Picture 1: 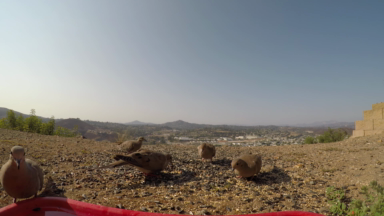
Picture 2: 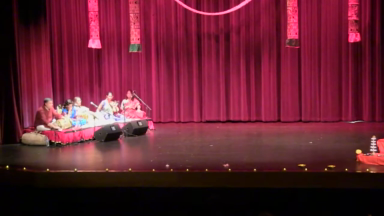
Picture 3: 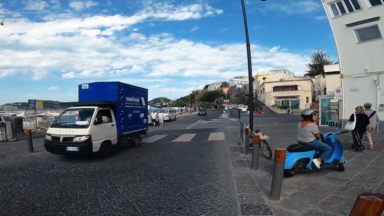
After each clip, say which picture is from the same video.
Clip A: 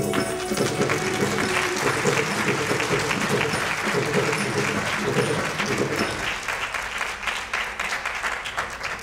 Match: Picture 2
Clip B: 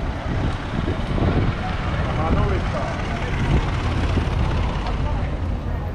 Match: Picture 3